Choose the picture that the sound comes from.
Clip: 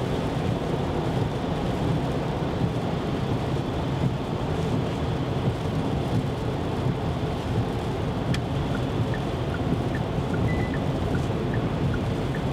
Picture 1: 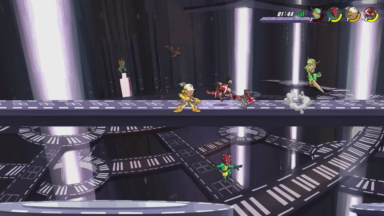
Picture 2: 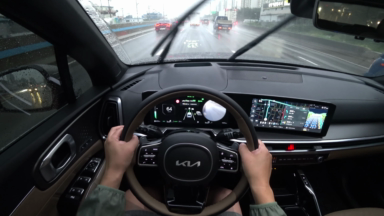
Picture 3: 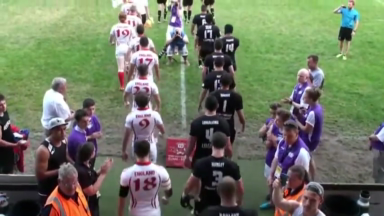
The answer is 2